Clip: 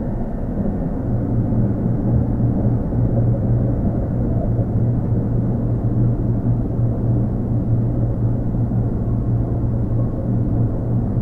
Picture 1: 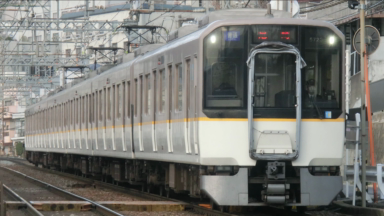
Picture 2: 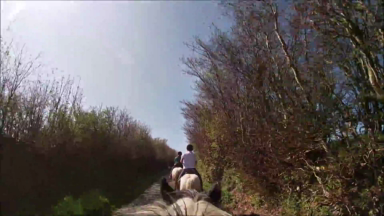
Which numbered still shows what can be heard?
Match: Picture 1